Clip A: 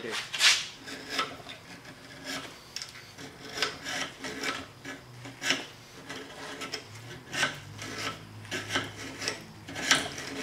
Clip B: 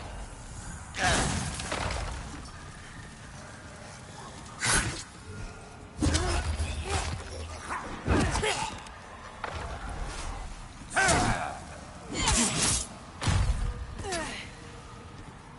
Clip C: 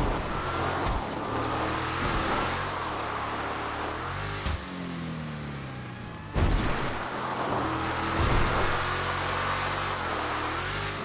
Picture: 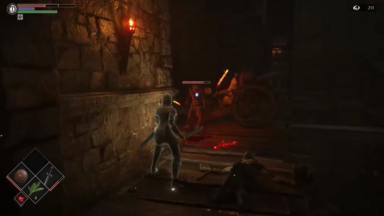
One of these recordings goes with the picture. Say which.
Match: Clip B